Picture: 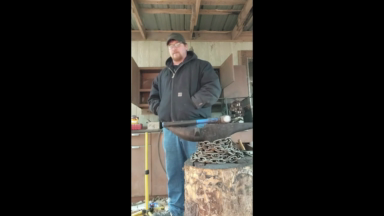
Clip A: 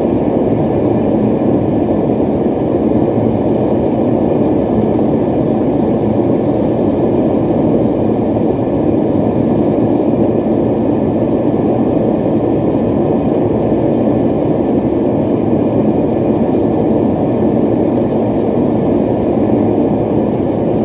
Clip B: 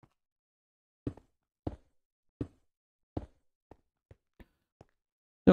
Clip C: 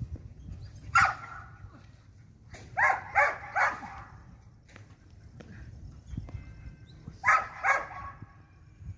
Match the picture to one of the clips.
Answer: A